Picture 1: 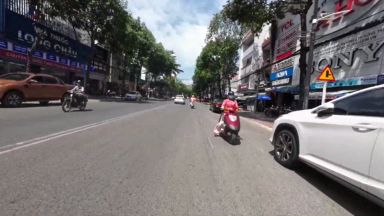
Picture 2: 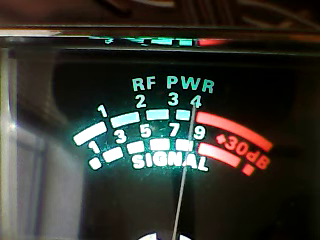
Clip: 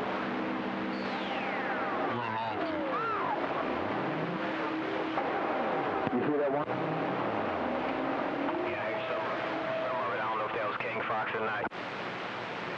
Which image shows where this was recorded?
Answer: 2